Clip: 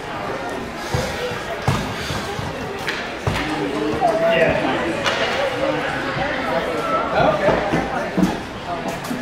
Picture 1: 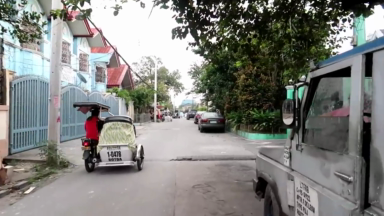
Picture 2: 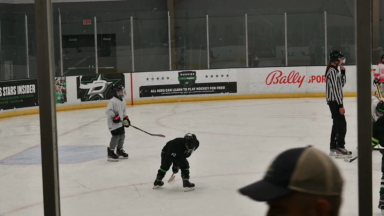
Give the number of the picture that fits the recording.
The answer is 2